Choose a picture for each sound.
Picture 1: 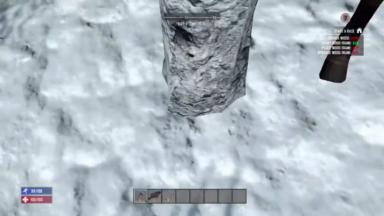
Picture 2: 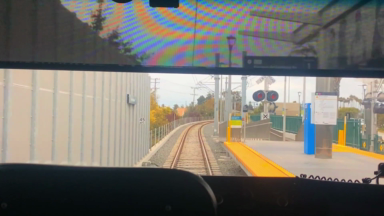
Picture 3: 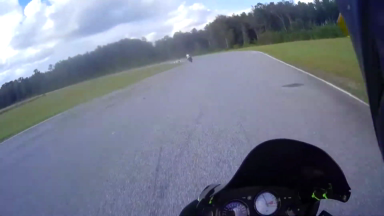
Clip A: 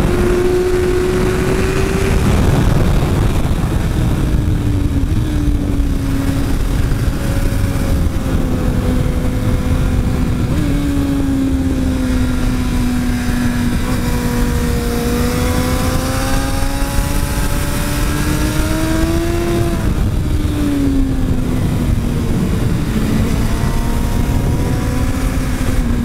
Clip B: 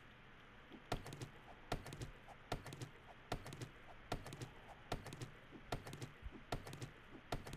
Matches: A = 3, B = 1